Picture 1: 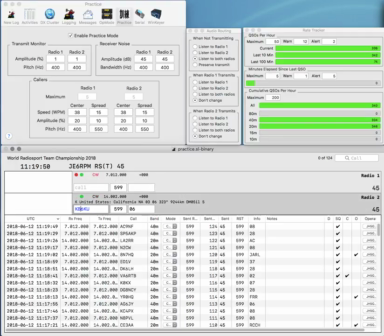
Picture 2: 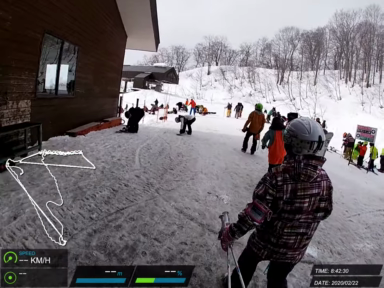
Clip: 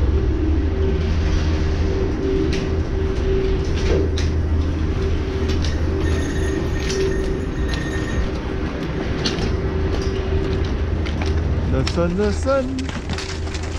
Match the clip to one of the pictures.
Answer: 2